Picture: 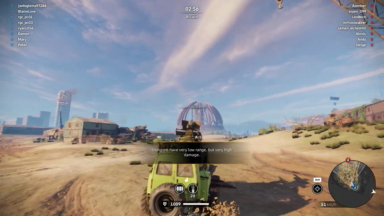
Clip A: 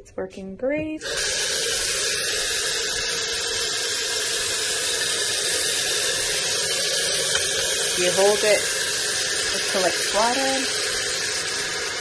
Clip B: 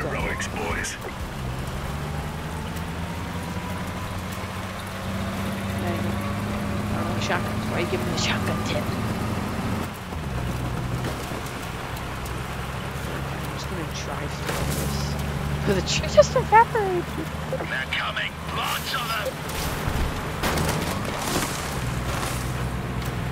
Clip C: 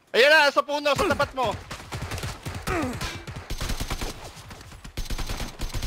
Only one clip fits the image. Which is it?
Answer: B